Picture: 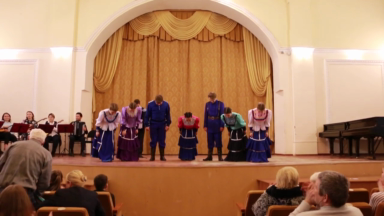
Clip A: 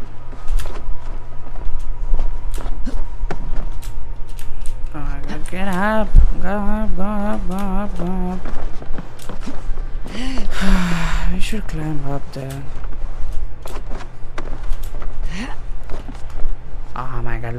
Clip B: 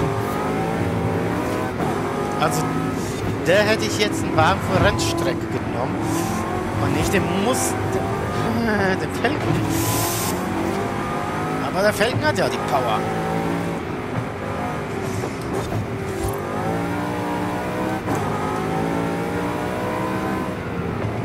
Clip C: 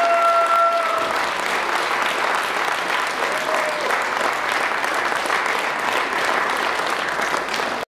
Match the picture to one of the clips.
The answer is C